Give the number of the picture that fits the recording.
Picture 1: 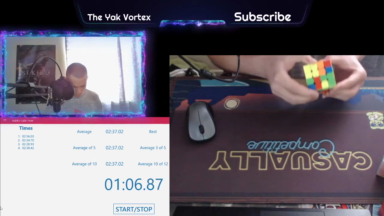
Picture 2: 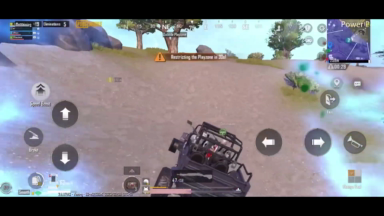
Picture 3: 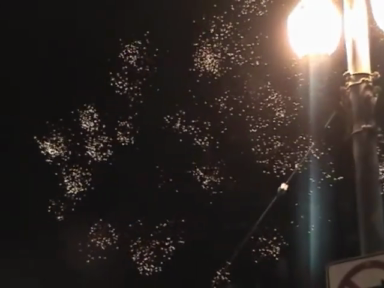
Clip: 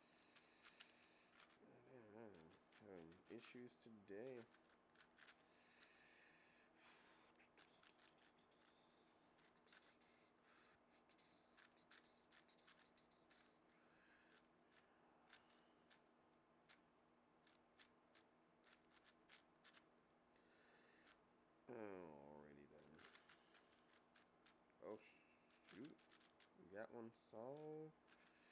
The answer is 1